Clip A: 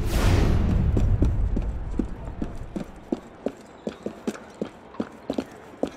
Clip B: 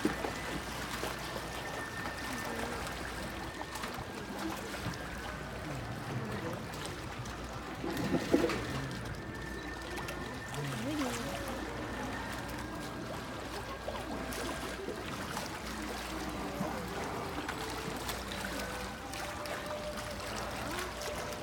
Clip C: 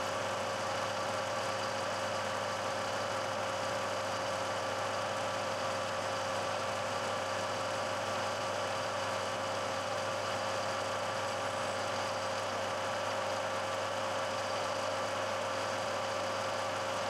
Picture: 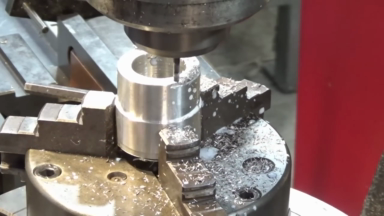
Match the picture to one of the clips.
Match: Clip C